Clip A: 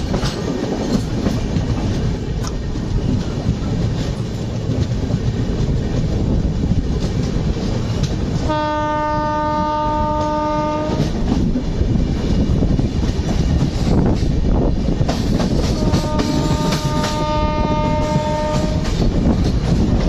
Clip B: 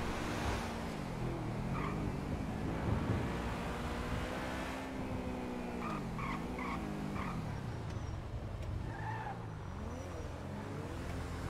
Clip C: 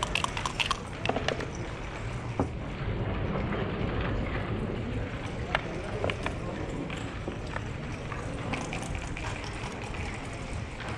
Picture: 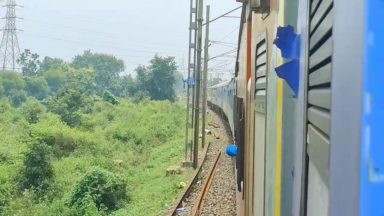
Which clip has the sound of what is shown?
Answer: A